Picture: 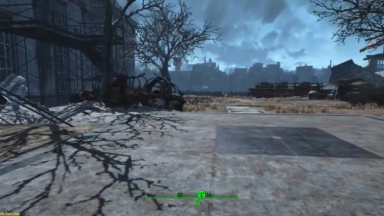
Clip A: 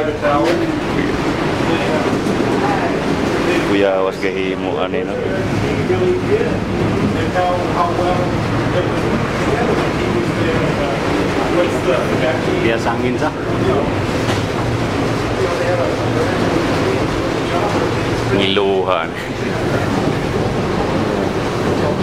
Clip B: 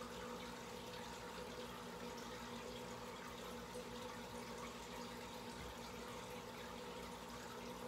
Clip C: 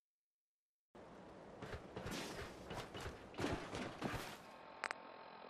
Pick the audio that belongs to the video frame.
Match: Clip C